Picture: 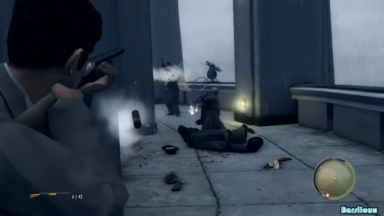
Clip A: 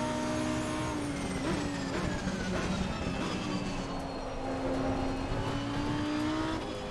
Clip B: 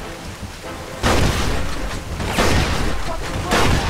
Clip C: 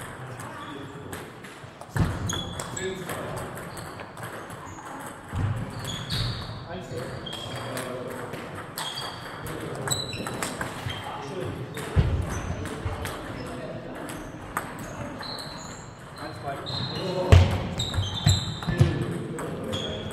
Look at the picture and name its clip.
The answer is B